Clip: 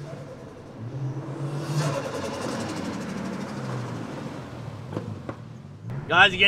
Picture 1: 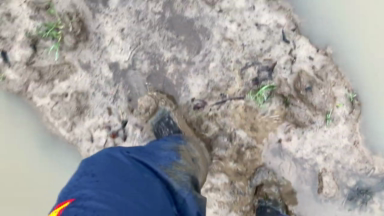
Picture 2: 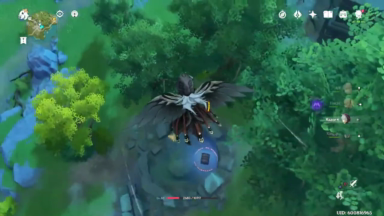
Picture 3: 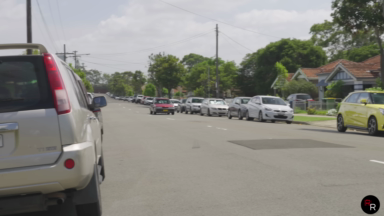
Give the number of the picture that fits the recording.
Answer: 3